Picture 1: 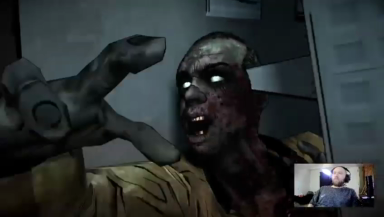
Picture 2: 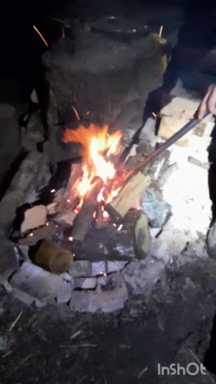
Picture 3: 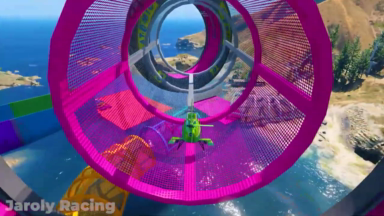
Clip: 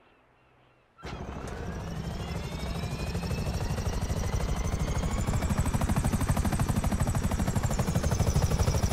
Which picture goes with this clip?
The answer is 3